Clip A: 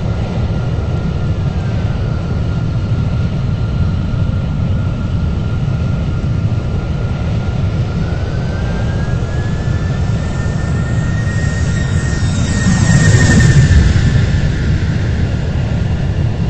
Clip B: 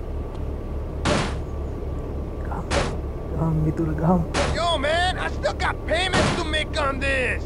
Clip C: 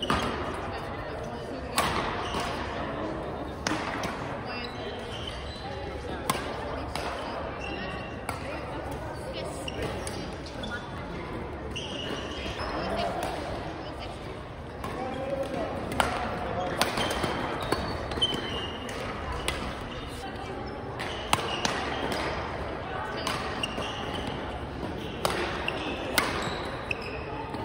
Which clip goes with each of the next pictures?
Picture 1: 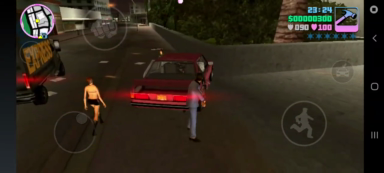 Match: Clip B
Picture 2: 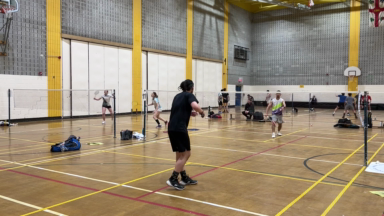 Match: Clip C